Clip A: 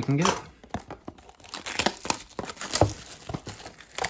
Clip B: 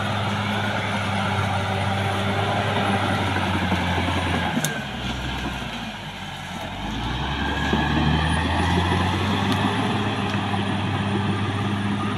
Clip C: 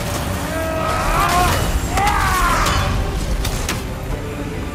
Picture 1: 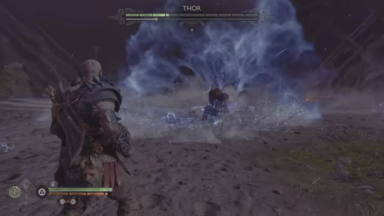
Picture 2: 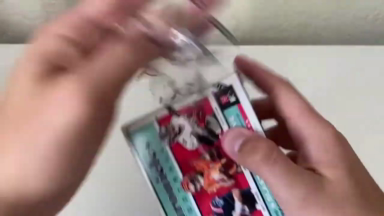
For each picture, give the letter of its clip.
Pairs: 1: C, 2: A